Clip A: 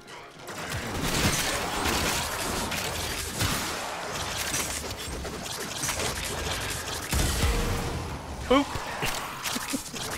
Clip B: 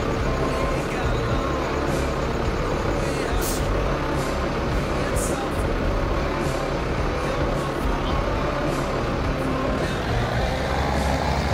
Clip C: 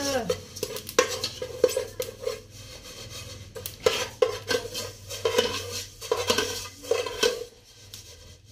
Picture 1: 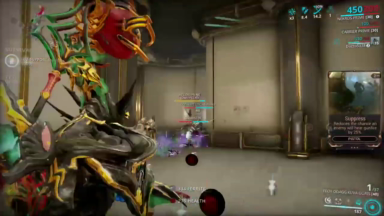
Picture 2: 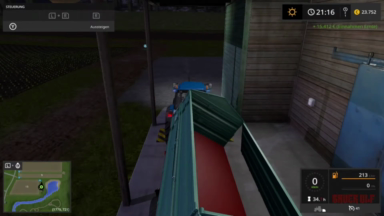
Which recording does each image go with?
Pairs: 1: A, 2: B